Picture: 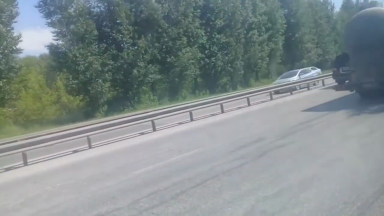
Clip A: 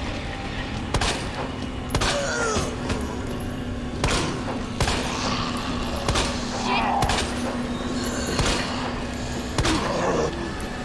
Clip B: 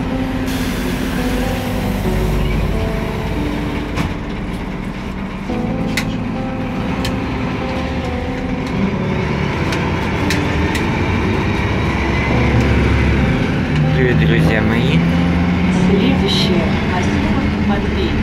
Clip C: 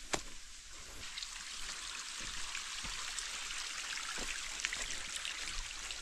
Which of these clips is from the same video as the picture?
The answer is B